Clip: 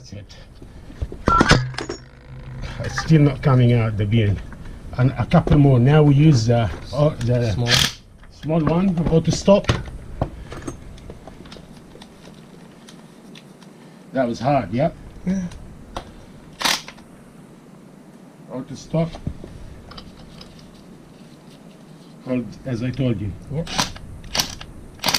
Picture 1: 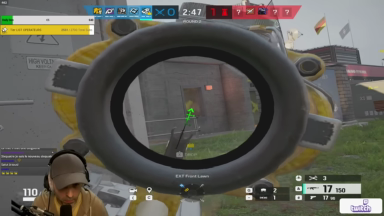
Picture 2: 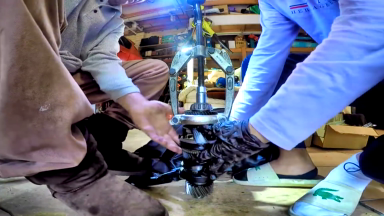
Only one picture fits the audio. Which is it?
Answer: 2